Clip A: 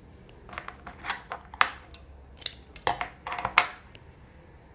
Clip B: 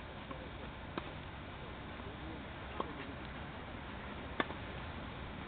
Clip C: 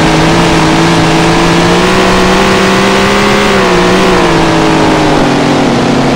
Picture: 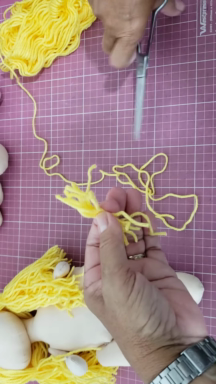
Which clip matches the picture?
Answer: A